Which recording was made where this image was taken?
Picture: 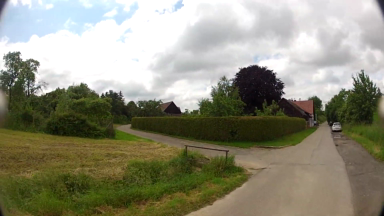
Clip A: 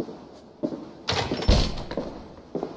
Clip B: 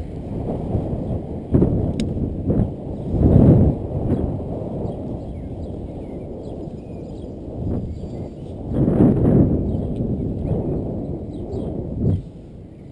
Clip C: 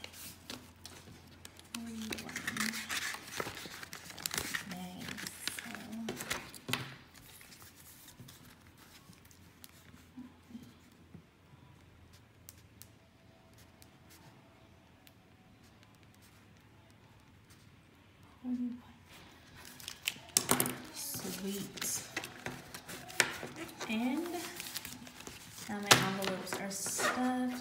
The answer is B